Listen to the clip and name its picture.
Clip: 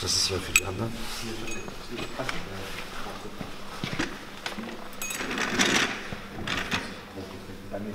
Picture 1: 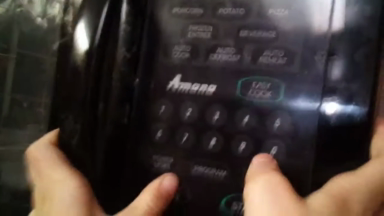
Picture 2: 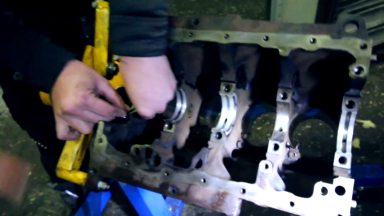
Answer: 2